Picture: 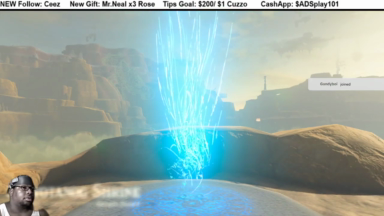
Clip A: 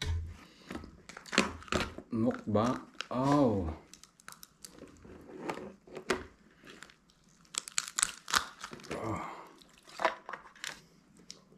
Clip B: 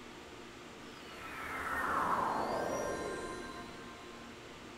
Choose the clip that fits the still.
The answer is B